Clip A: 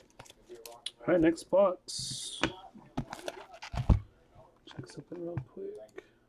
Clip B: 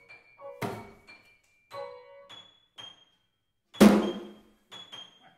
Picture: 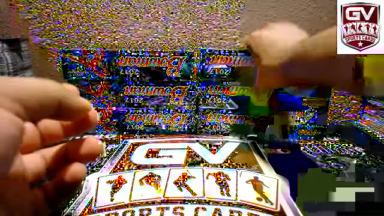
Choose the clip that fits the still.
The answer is A